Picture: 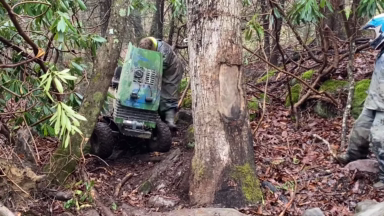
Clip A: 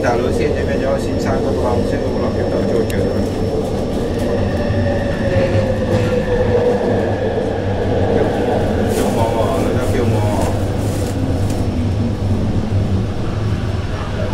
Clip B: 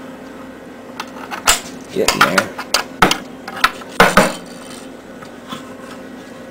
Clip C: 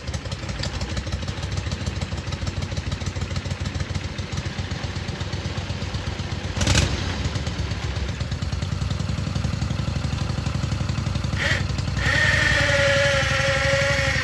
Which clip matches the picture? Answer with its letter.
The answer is C